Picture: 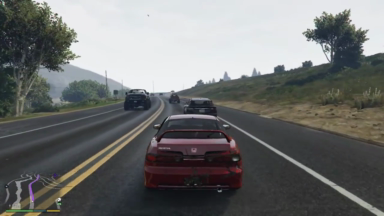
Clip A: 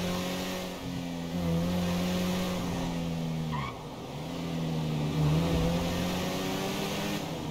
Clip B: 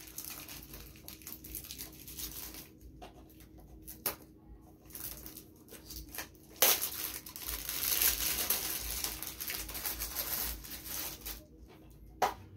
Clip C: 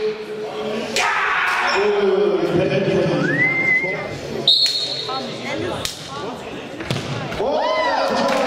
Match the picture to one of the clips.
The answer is A